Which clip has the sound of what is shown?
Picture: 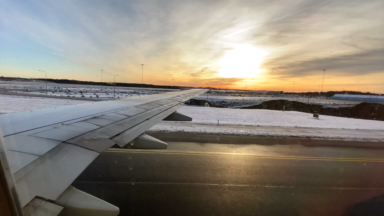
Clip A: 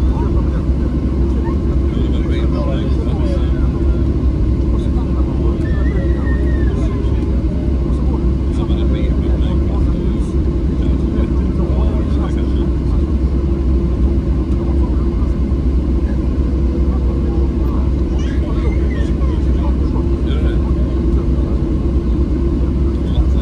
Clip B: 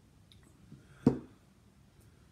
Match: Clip A